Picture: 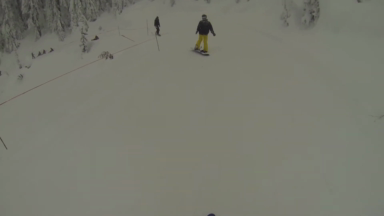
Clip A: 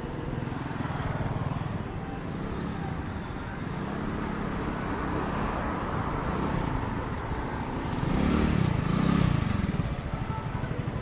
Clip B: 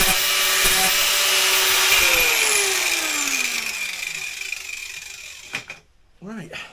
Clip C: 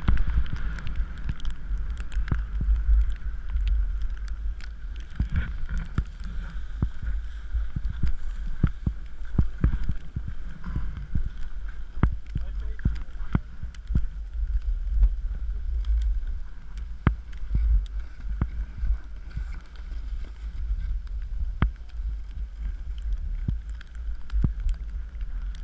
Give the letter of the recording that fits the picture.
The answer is C